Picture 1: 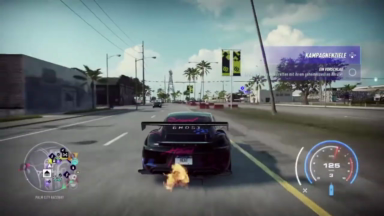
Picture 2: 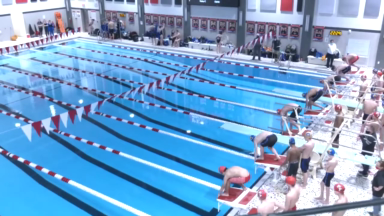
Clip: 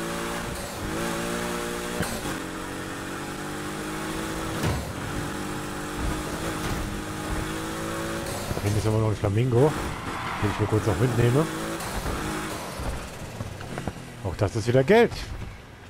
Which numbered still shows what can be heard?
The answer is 1